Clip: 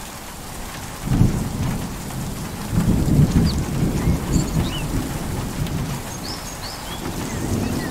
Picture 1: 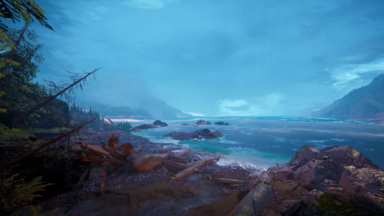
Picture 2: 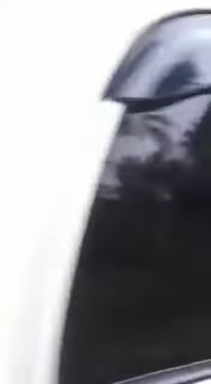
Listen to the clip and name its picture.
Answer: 1